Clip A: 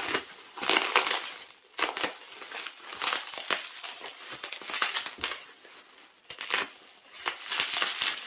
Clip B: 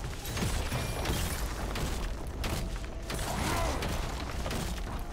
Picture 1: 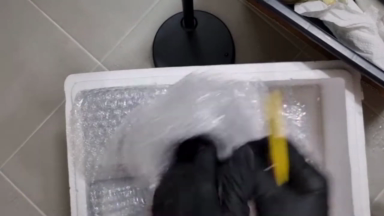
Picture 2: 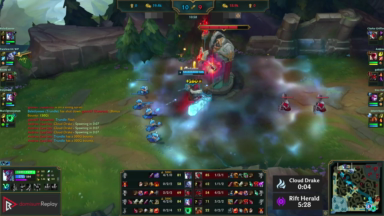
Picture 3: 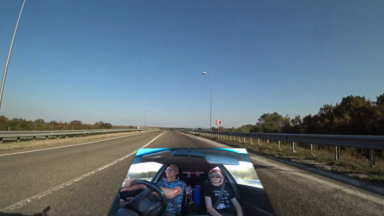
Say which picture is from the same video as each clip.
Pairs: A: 1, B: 2